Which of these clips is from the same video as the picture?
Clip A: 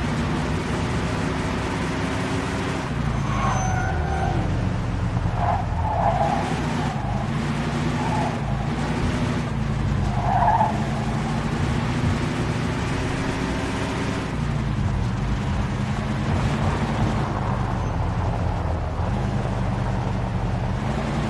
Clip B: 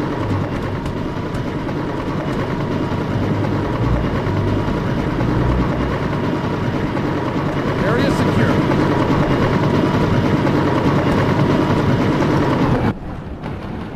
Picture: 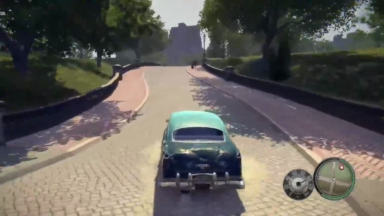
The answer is A